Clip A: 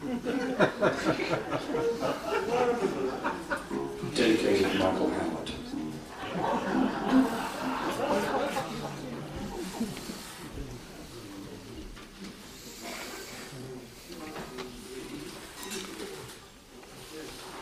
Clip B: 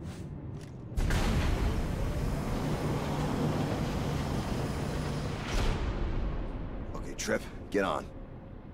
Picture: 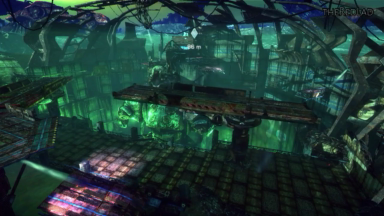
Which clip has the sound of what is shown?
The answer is B